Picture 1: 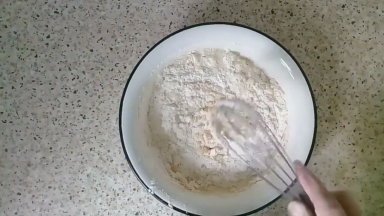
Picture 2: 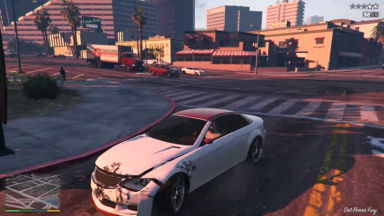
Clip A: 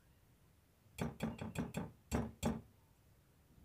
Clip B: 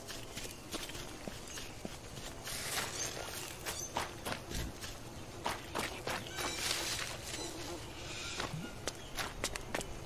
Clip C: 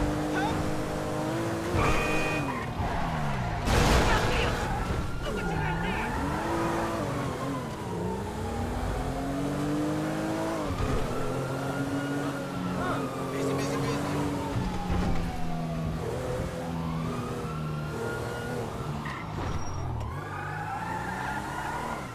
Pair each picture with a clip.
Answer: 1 A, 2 C